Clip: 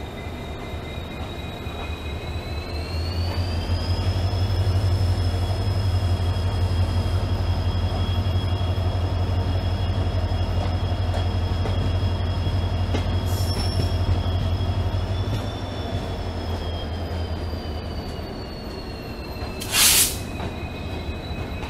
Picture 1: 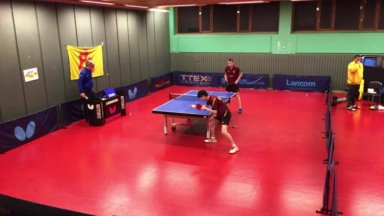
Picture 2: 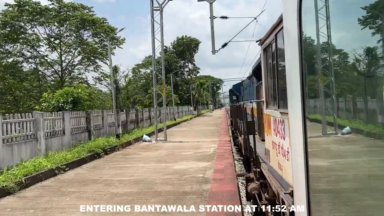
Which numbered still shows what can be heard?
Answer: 2